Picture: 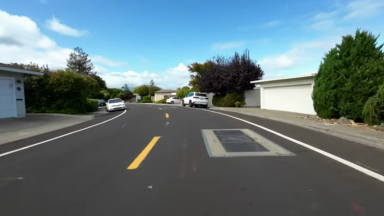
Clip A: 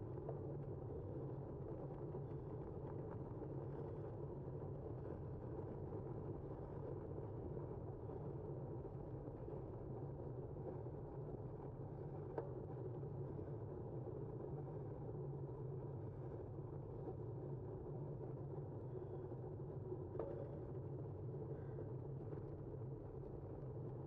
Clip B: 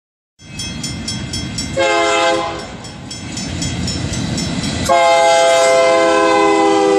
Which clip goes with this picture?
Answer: A